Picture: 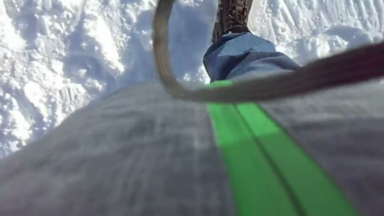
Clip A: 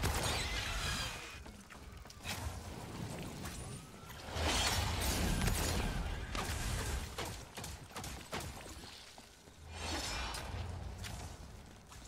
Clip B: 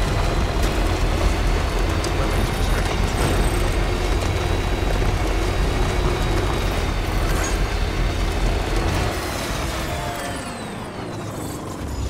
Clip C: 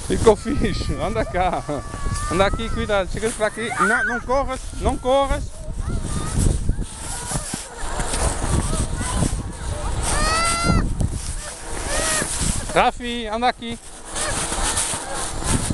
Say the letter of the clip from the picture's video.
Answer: C